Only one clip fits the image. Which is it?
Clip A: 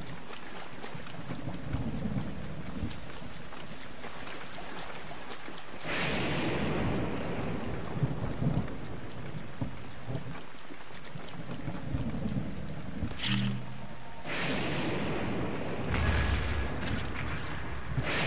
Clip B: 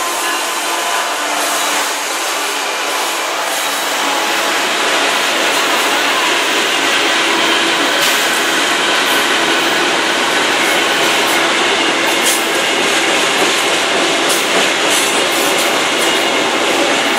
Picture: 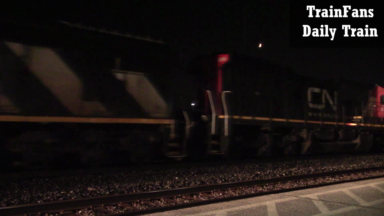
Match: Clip B